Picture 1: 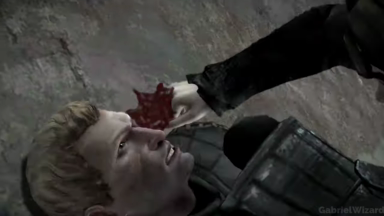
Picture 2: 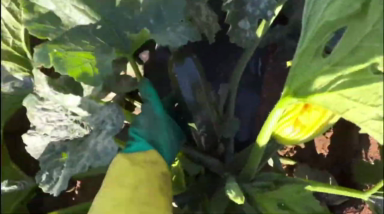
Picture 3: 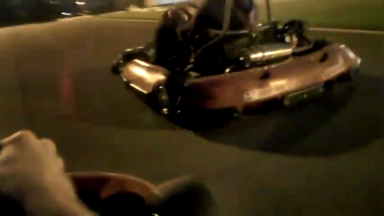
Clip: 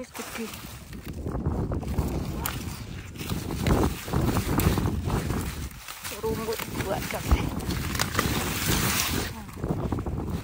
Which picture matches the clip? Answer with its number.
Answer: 2